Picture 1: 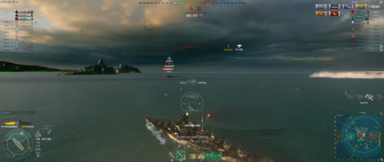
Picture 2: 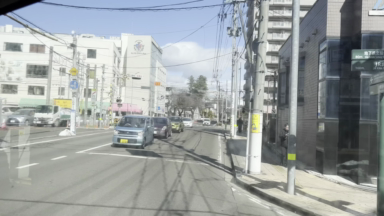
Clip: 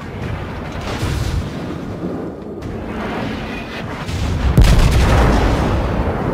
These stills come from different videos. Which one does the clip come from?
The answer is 1